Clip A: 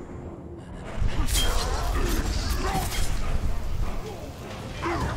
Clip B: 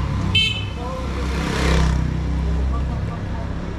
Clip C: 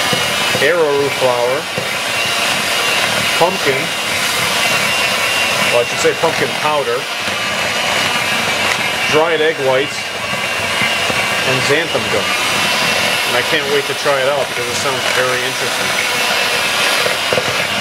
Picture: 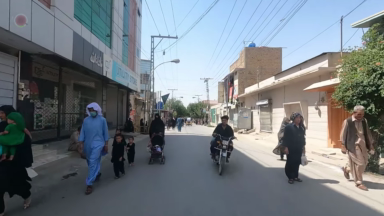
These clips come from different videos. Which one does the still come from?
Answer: B